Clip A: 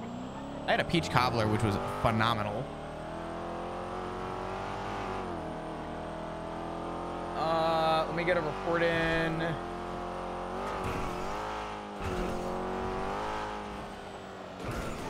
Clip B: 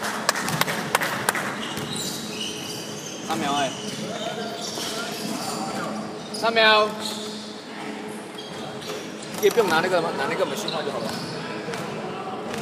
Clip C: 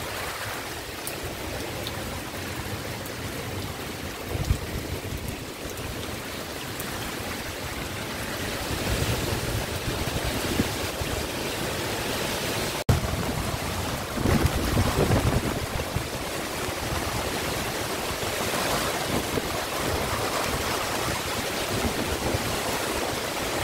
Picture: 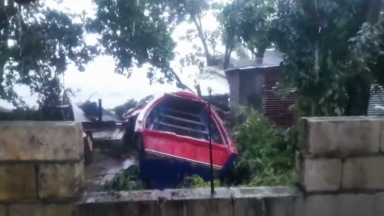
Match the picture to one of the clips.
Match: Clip C